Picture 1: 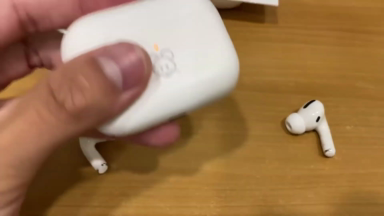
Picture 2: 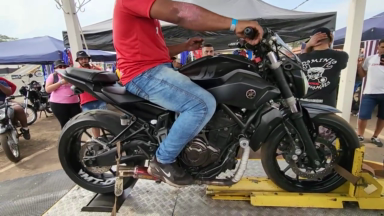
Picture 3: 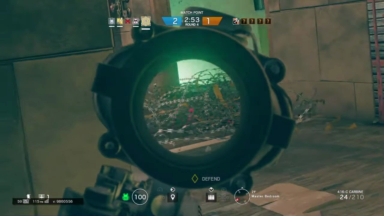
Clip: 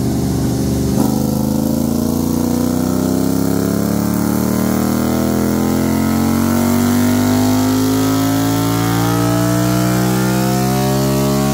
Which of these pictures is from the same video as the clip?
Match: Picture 2